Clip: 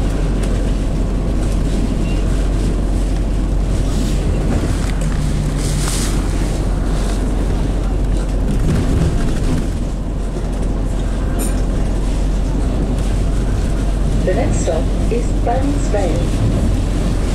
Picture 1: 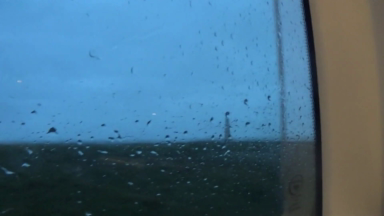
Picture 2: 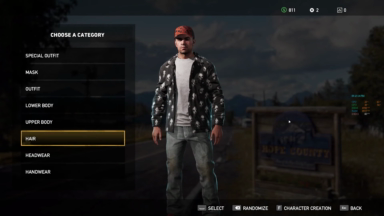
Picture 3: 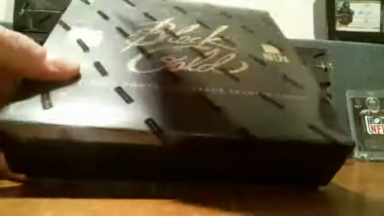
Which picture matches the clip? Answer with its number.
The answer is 1